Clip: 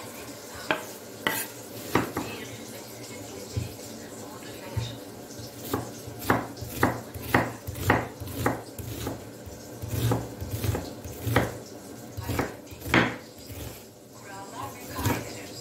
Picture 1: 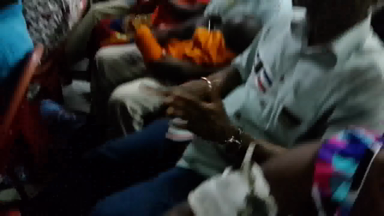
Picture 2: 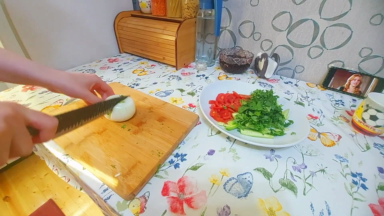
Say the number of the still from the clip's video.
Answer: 2